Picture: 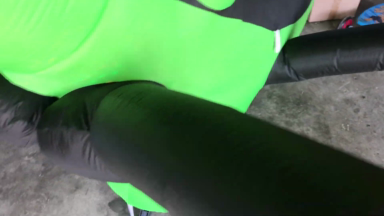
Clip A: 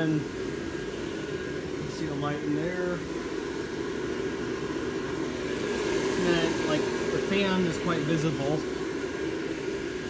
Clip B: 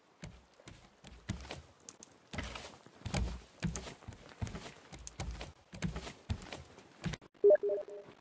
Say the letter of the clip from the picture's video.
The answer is A